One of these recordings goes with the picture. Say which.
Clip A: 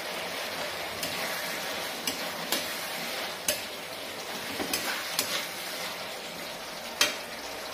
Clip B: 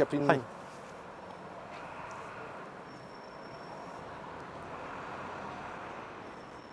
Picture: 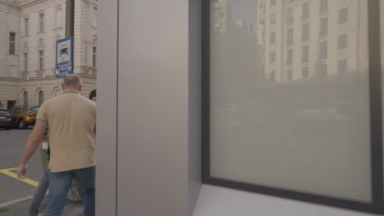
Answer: B